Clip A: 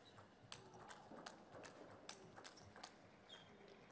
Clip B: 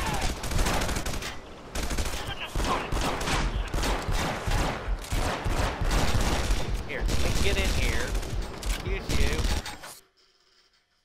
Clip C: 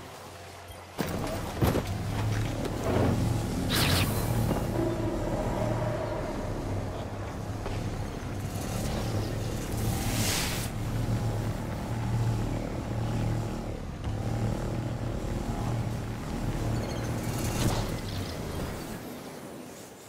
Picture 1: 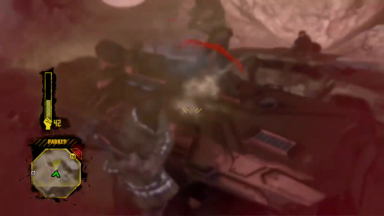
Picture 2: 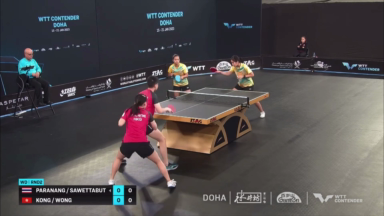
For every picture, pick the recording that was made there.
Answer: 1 B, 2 A